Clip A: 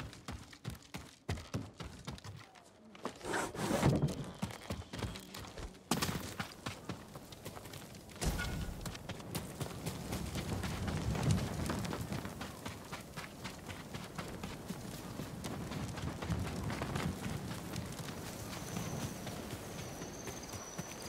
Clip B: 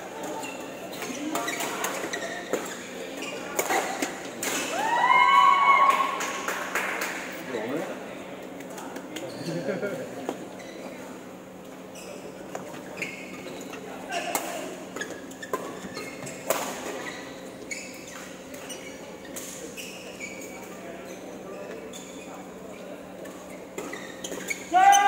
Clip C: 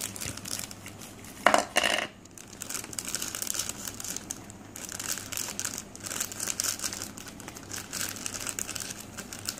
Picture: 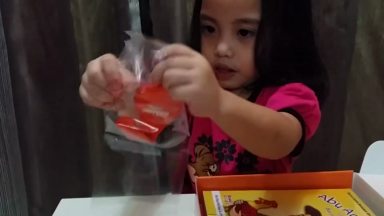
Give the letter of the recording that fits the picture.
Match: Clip C